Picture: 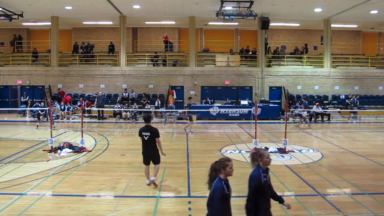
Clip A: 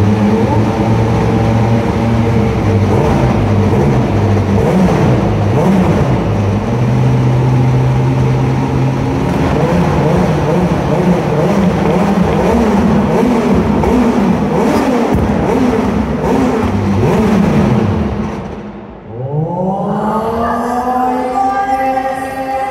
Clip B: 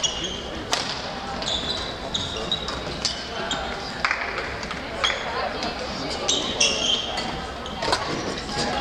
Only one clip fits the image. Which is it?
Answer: B